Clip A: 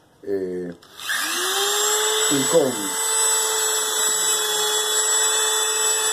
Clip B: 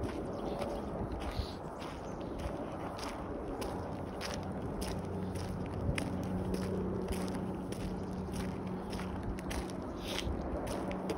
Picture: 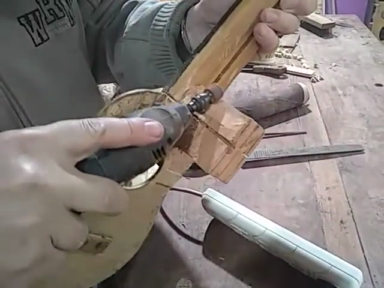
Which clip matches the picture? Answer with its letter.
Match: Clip A